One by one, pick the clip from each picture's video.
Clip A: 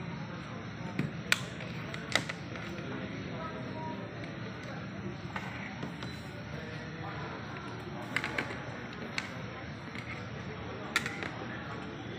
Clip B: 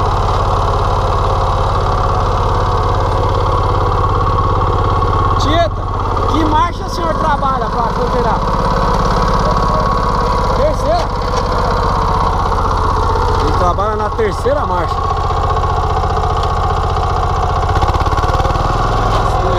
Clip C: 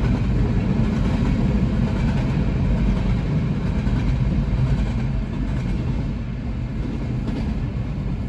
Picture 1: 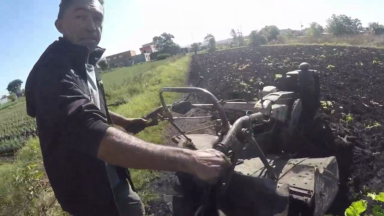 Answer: B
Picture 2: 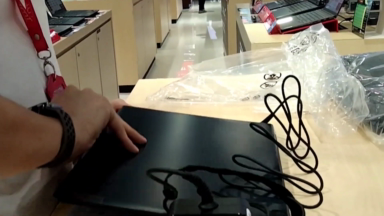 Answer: A